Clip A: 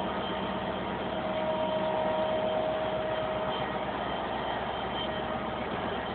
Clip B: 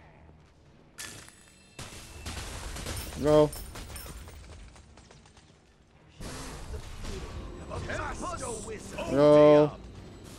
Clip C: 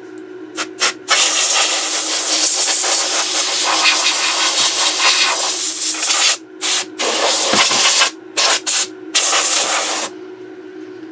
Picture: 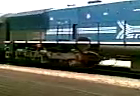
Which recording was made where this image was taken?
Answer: A